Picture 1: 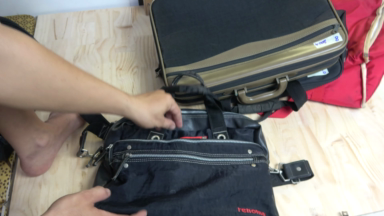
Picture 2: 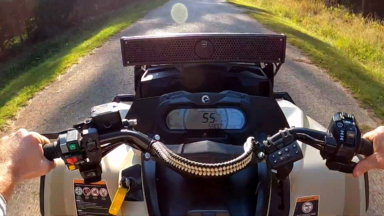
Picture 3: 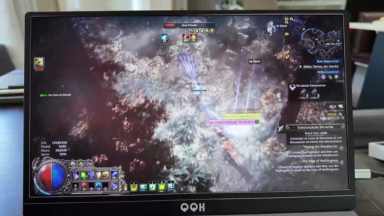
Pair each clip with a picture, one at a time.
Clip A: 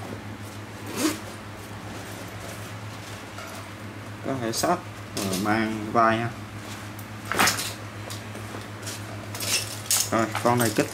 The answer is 1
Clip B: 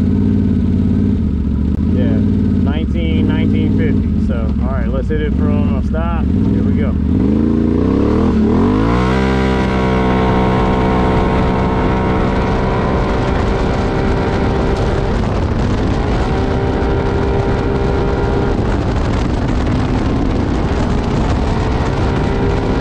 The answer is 2